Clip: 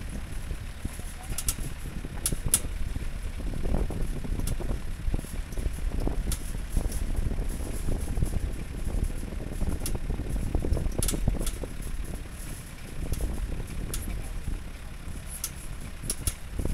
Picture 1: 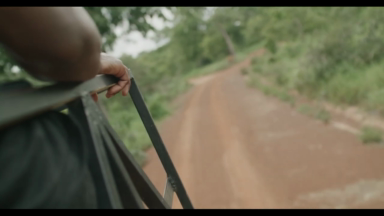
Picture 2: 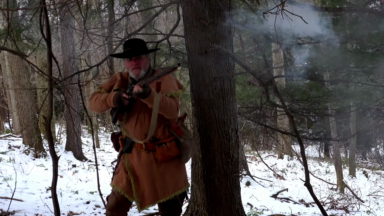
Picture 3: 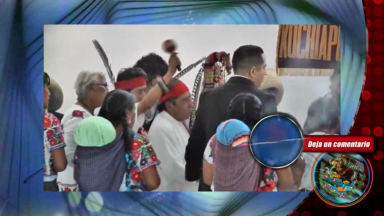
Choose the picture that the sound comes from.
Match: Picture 1